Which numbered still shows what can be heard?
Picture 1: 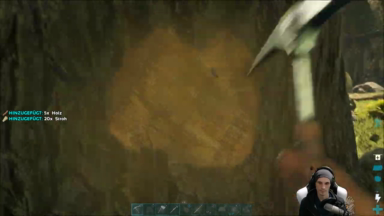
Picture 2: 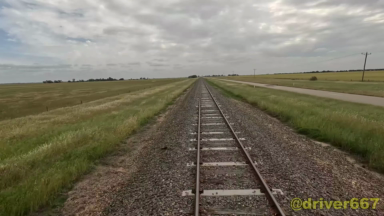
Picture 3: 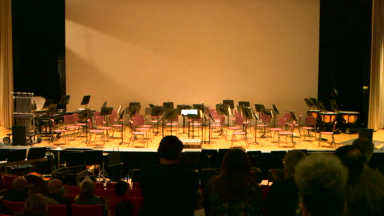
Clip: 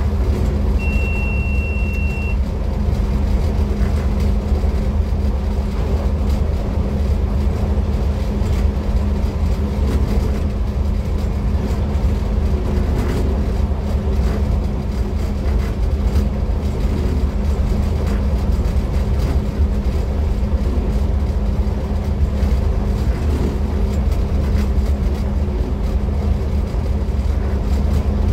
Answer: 2